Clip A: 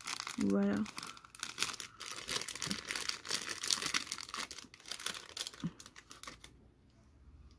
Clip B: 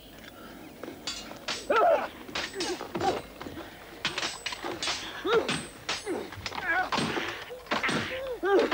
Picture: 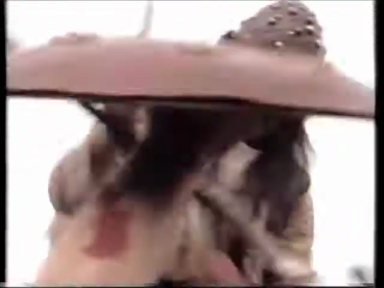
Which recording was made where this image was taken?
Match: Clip B